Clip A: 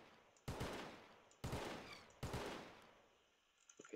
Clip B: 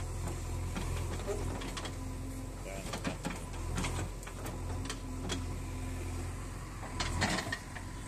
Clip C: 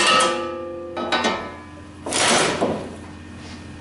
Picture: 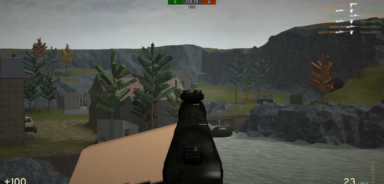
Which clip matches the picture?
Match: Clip A